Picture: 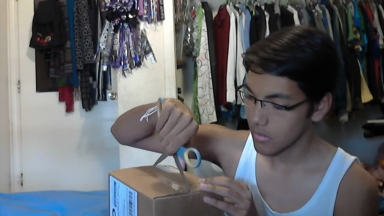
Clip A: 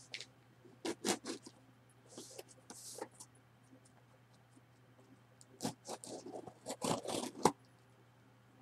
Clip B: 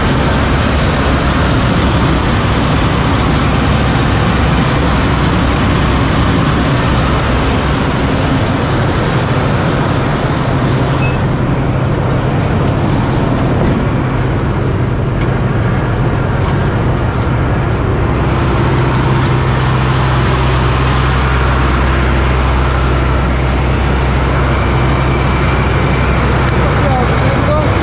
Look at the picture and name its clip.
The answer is A